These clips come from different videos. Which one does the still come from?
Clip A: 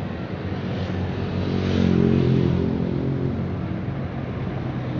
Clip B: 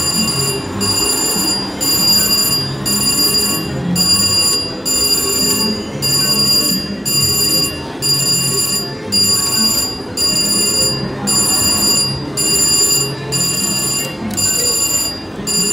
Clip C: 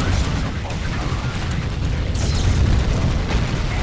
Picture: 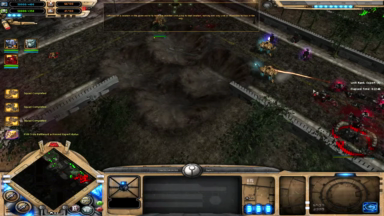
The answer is C